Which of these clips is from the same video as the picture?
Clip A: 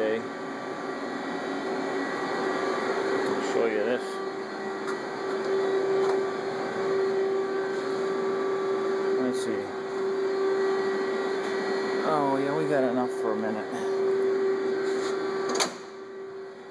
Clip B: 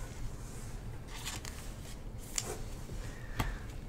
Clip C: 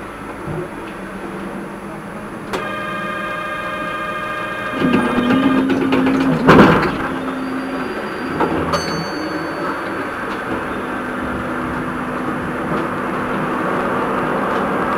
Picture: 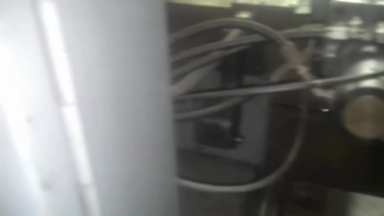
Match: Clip A